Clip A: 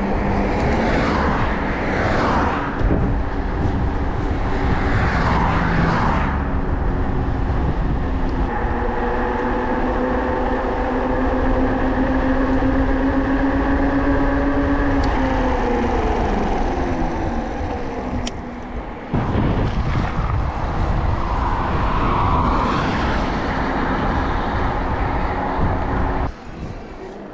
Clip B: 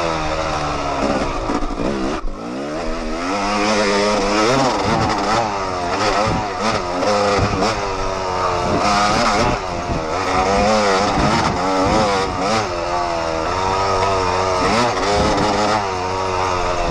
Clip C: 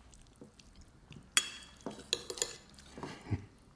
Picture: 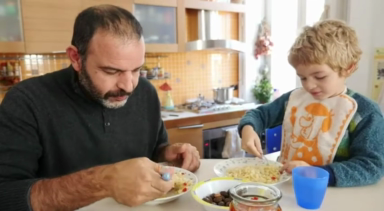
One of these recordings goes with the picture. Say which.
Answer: C